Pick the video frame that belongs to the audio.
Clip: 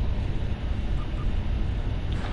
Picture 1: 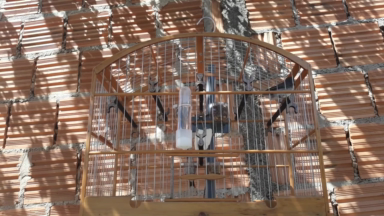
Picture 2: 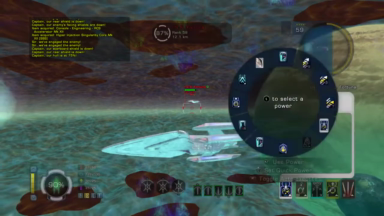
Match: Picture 2